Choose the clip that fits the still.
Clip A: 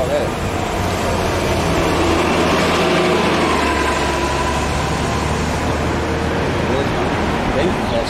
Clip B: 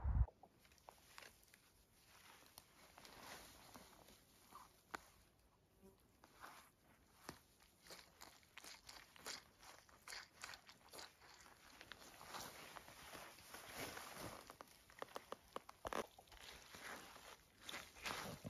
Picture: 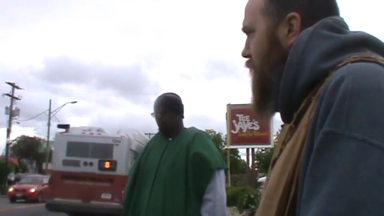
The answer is A